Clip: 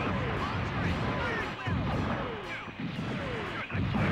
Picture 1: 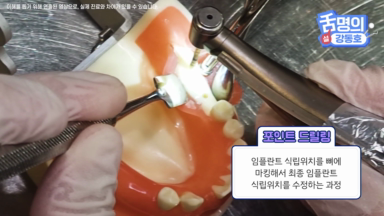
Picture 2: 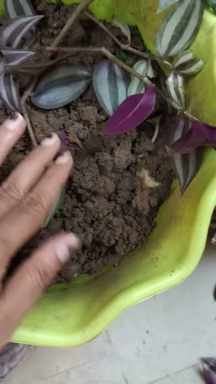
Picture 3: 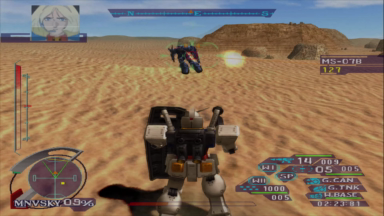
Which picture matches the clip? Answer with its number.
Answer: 3